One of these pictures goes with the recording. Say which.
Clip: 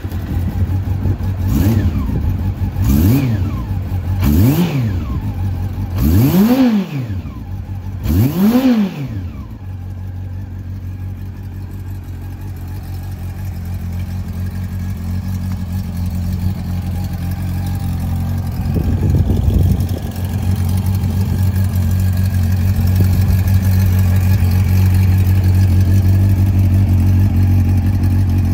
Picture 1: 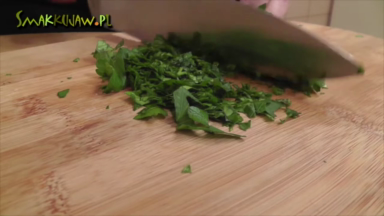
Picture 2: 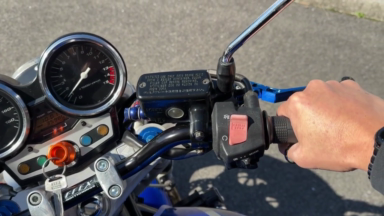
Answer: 2